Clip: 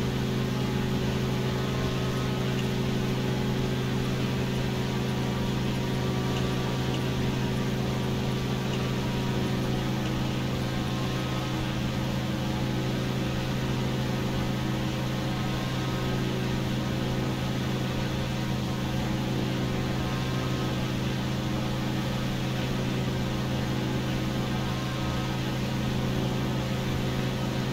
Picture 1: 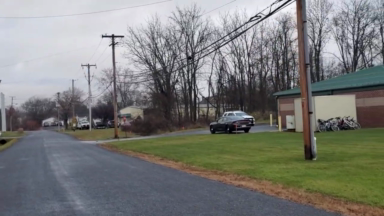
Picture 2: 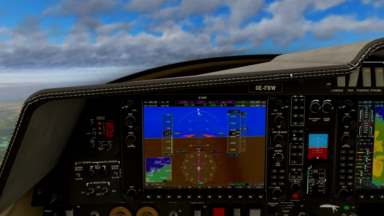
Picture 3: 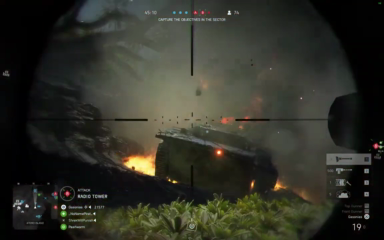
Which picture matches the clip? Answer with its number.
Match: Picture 2